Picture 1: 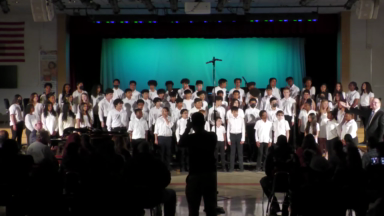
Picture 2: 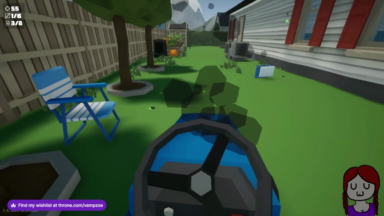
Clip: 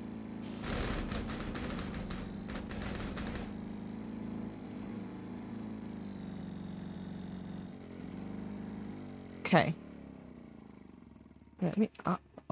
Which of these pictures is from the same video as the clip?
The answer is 2